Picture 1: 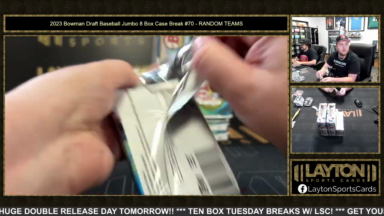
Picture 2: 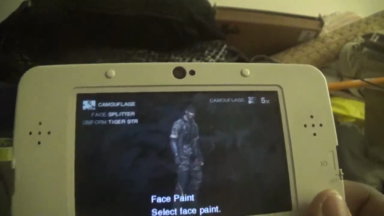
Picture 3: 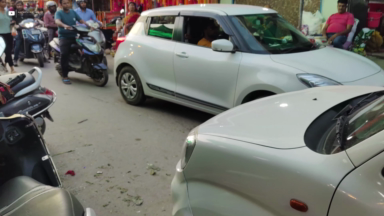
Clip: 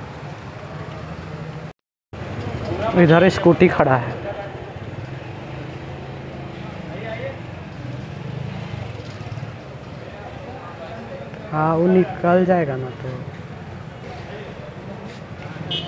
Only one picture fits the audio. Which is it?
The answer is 3